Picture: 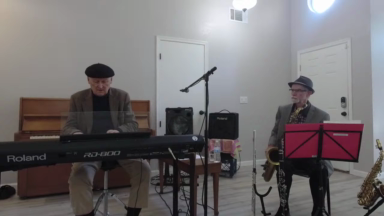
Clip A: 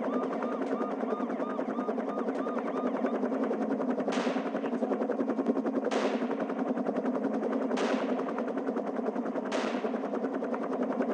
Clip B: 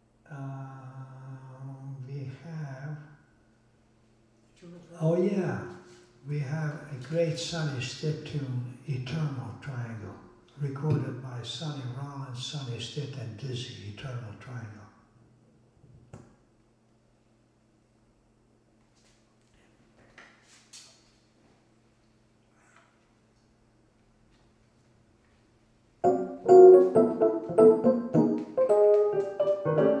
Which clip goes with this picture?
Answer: B